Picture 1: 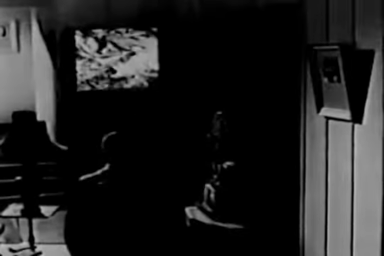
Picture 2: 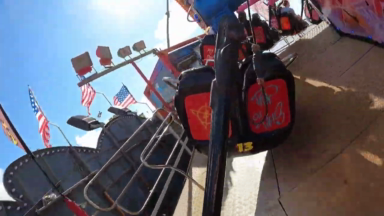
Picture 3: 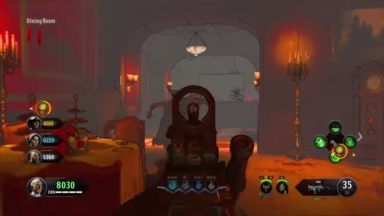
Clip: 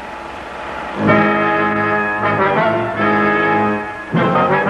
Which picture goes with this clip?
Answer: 1